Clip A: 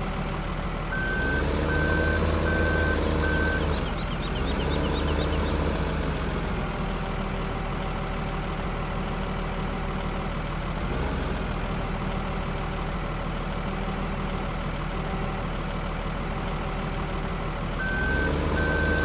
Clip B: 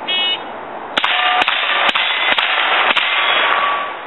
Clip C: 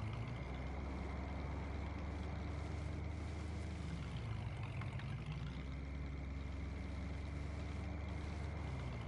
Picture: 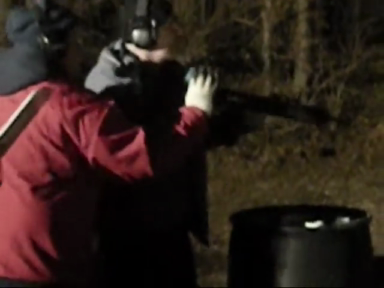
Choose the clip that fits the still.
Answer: B